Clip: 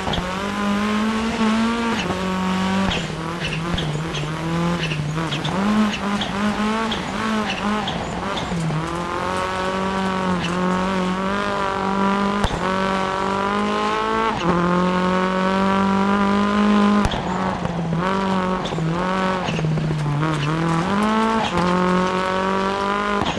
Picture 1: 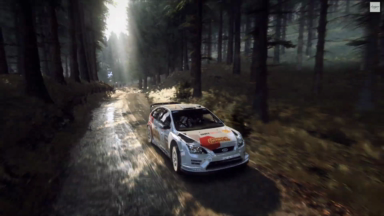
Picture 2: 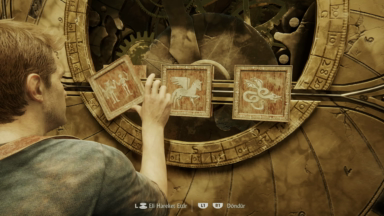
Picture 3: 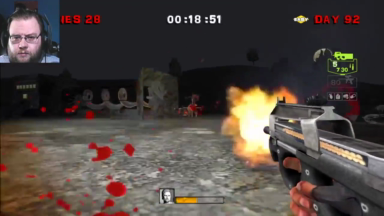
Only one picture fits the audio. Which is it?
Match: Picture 1